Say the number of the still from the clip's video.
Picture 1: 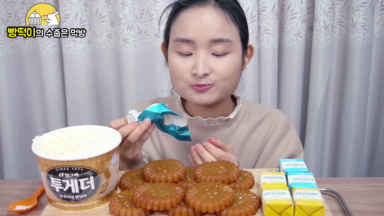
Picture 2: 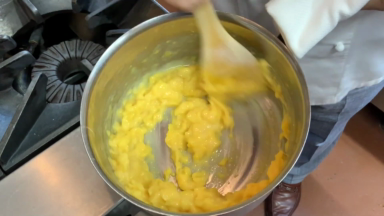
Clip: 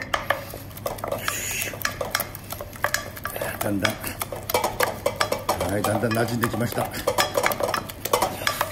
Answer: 2